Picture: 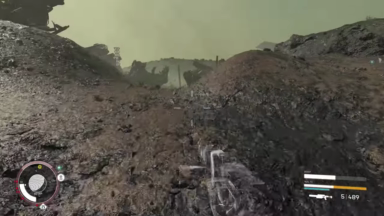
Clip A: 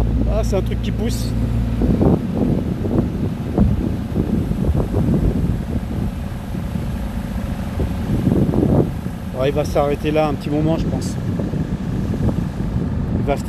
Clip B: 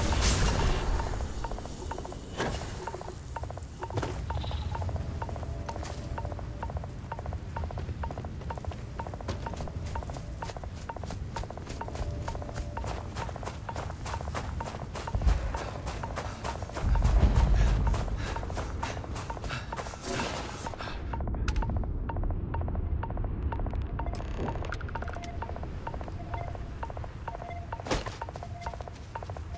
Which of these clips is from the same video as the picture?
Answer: B